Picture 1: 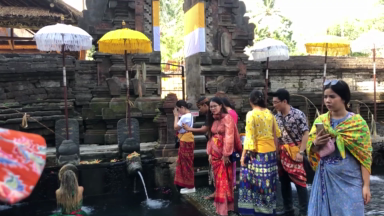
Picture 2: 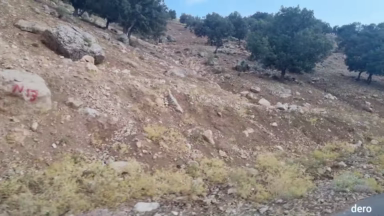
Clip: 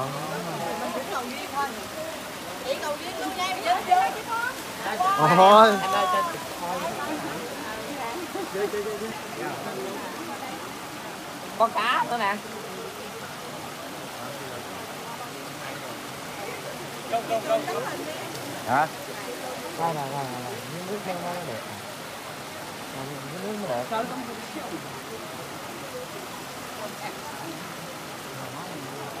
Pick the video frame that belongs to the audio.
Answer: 1